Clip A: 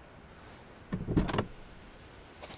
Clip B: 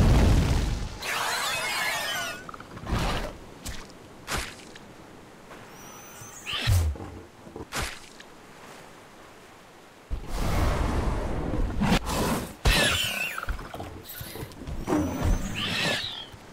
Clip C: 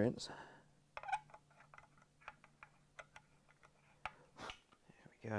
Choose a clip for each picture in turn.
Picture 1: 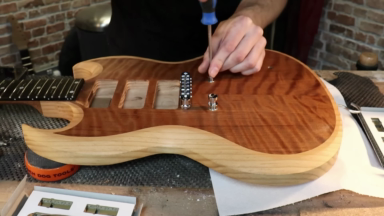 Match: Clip C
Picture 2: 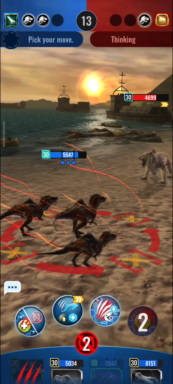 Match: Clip B